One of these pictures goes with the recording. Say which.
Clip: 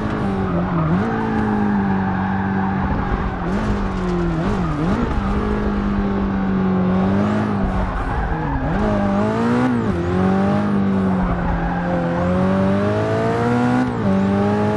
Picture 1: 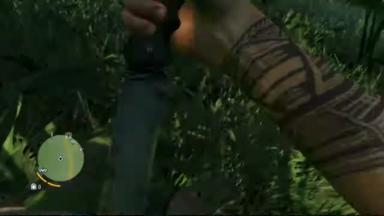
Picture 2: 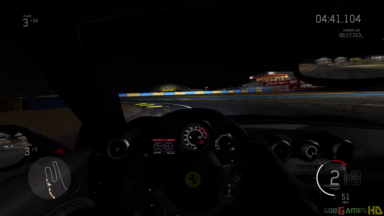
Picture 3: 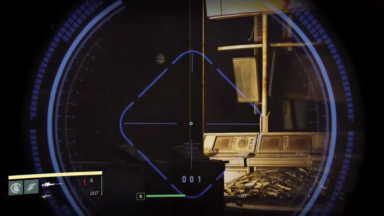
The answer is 2